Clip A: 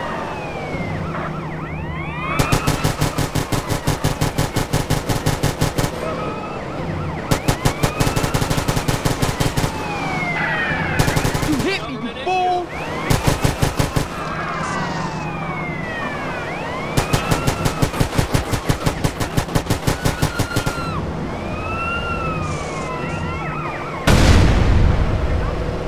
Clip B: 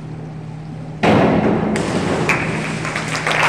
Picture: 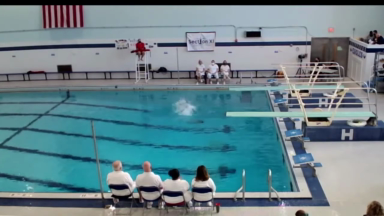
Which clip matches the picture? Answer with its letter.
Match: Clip B